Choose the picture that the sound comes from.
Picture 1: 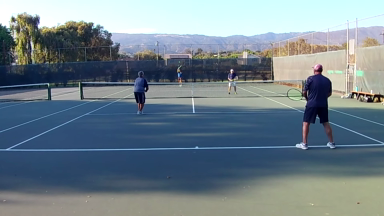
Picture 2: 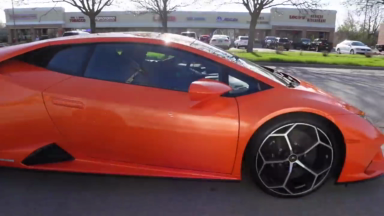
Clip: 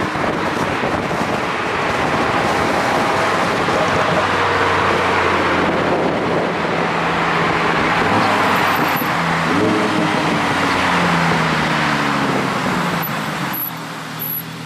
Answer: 2